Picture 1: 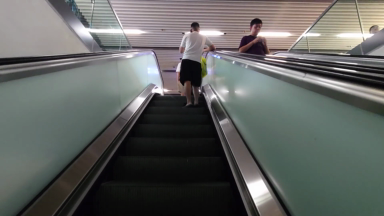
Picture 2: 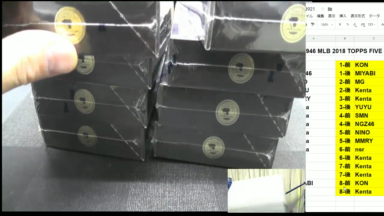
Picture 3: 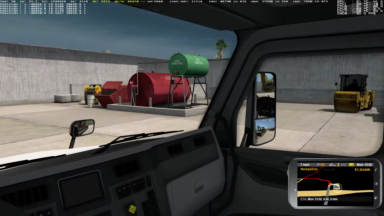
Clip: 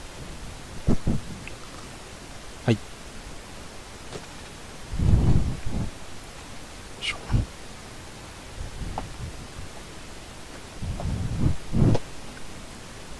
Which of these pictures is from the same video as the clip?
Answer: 2